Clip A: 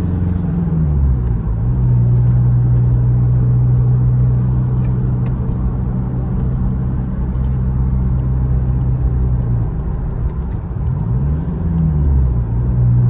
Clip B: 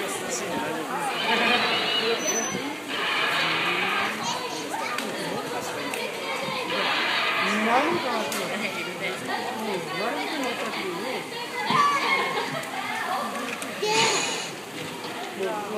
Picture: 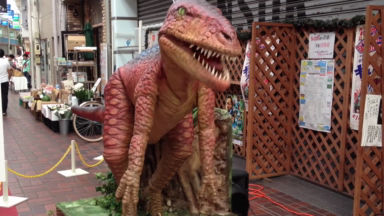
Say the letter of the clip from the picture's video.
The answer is B